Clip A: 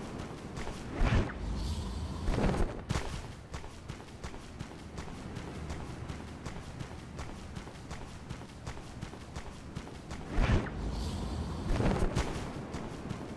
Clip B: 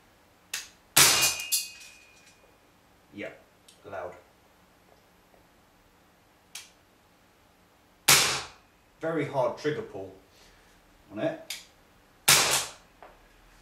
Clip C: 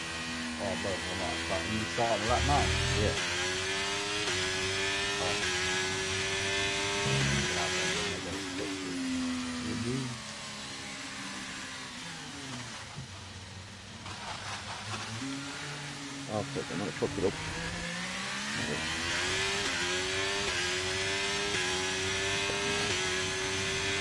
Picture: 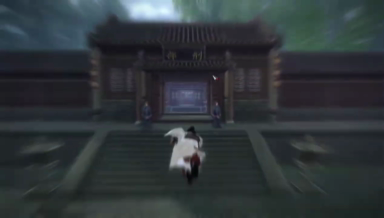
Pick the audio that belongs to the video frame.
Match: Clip A